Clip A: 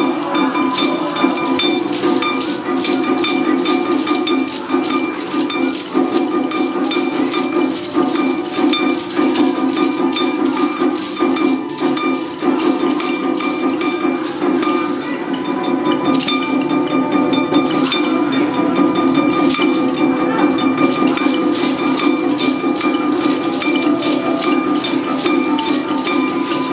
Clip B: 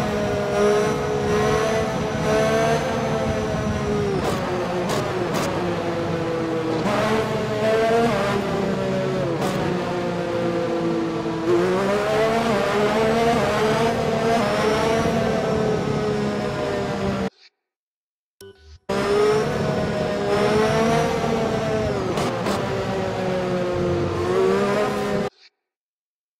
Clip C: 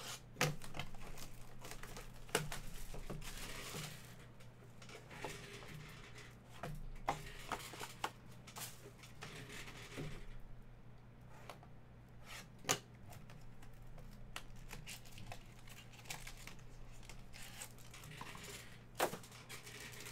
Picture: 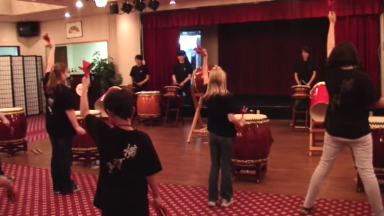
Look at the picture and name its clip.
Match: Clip A